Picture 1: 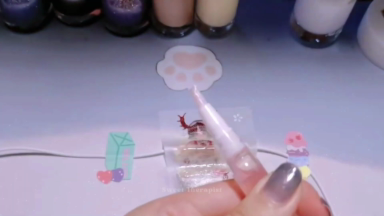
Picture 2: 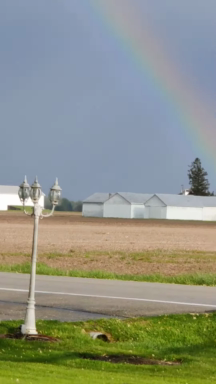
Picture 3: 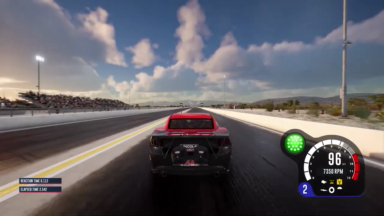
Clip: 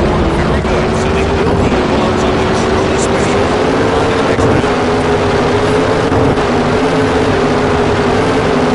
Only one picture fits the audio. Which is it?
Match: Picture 3